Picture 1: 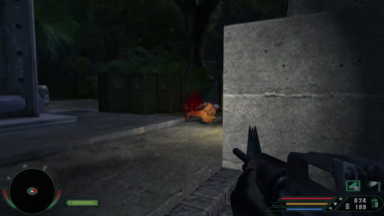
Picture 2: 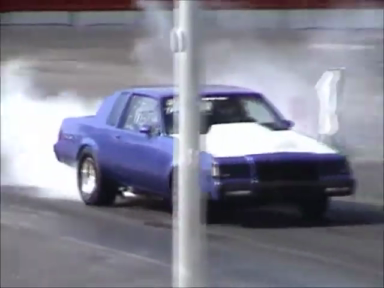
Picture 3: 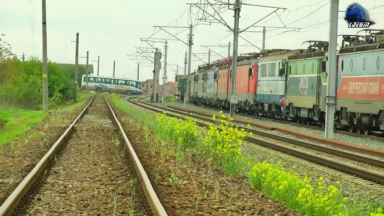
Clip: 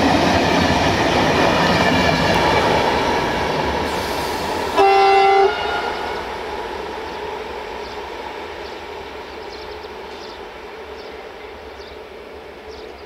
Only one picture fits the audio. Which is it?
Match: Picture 3